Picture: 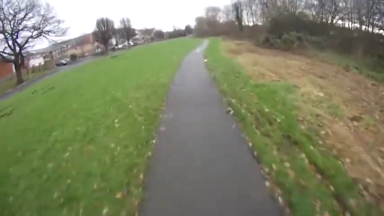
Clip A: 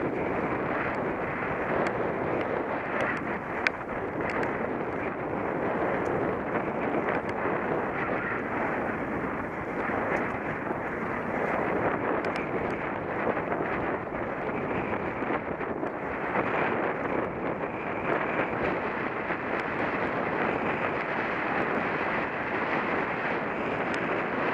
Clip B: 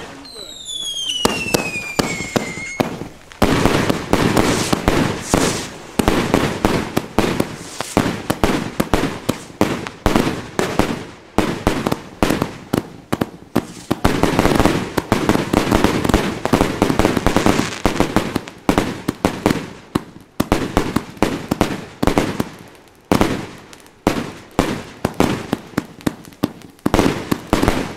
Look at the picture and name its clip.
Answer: A